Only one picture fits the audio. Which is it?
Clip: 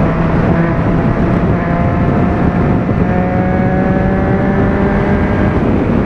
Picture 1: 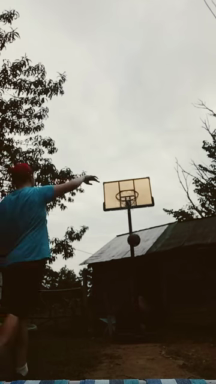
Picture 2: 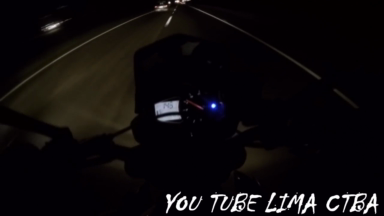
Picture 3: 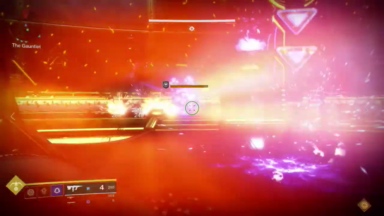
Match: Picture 2